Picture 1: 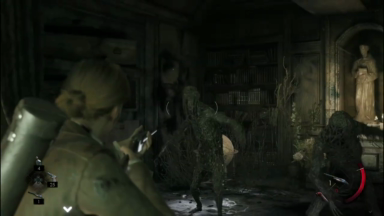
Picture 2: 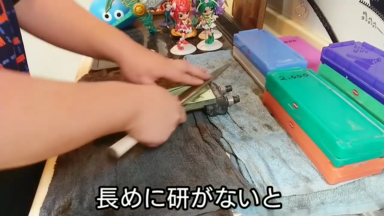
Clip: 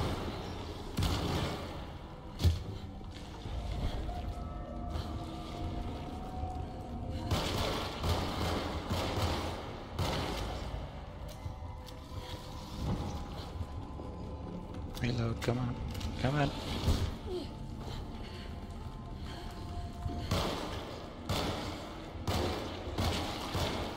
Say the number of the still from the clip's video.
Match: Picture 1